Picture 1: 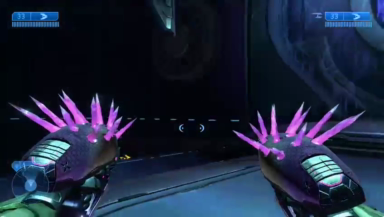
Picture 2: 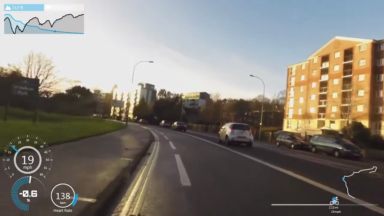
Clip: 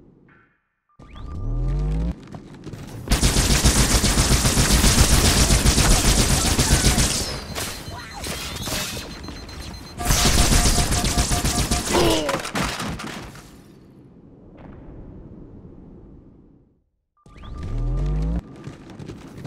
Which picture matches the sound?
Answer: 1